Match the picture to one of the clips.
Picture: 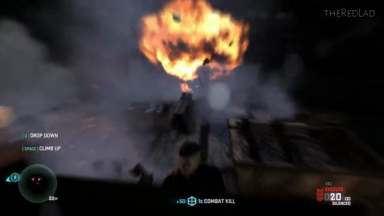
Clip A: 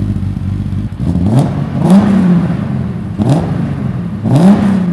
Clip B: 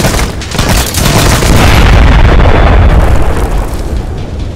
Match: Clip B